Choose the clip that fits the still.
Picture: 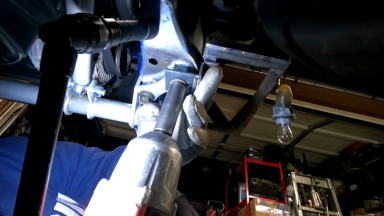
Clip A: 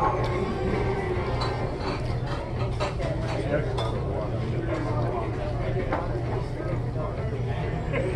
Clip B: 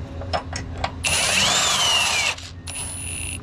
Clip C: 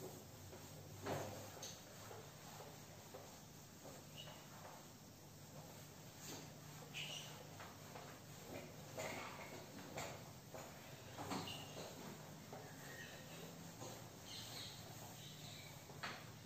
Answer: B